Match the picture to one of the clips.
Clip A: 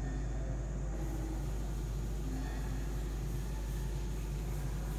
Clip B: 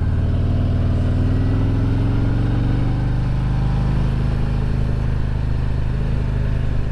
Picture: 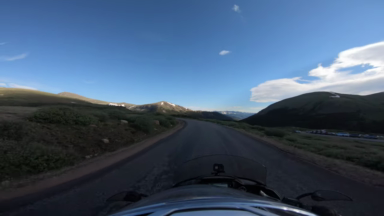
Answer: B